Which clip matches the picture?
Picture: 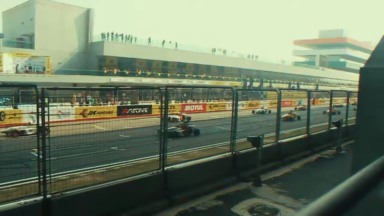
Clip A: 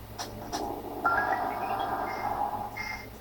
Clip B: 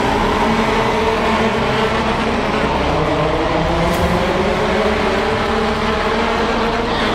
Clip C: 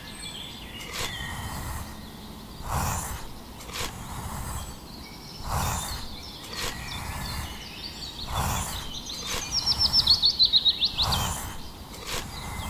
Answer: B